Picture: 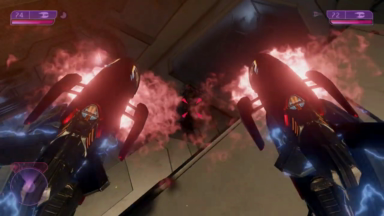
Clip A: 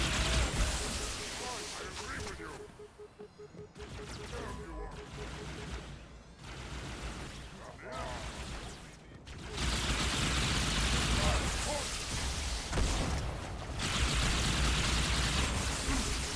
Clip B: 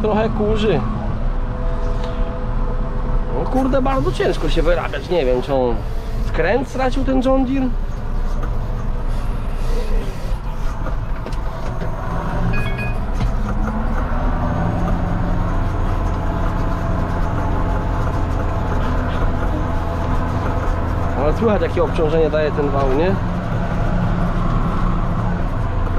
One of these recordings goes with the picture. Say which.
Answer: A